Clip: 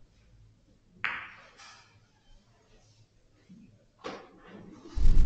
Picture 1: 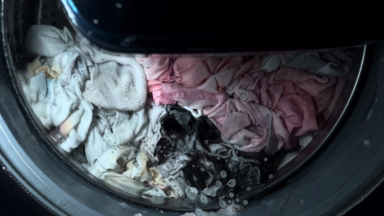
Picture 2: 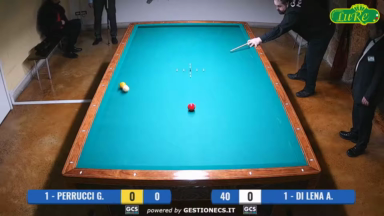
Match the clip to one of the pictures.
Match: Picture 2